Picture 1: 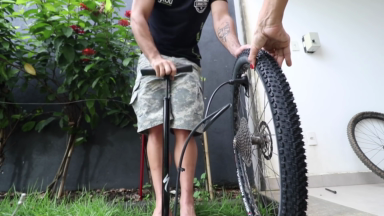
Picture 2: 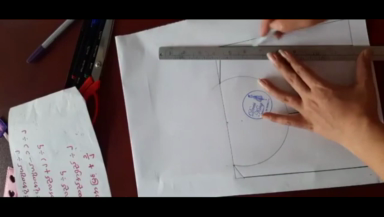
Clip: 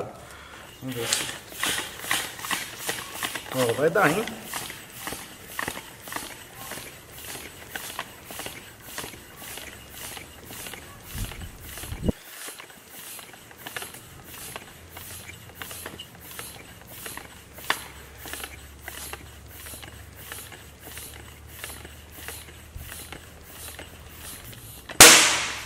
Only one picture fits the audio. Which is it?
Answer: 1